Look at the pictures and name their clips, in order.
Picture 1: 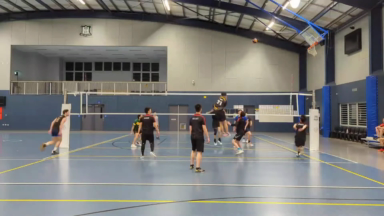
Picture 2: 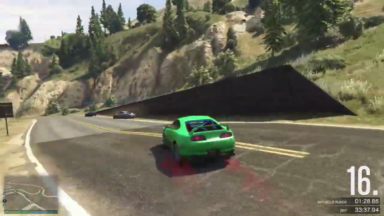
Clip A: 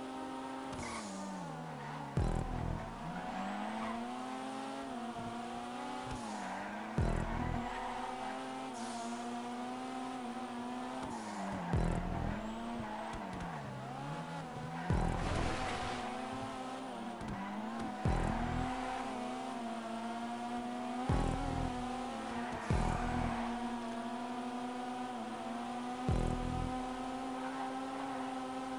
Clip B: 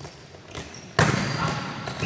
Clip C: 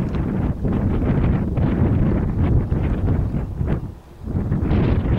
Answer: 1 B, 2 A